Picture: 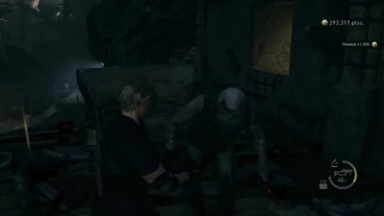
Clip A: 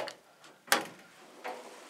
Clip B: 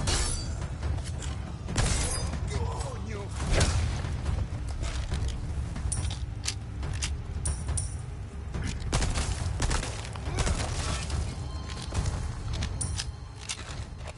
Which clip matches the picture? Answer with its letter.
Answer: B